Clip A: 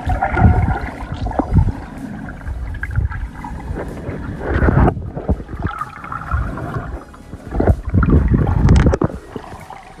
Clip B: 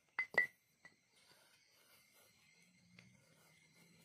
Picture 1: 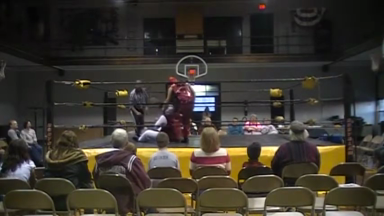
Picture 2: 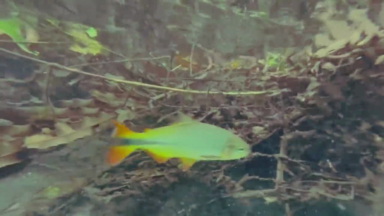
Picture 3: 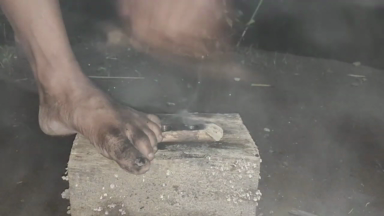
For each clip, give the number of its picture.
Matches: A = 2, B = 3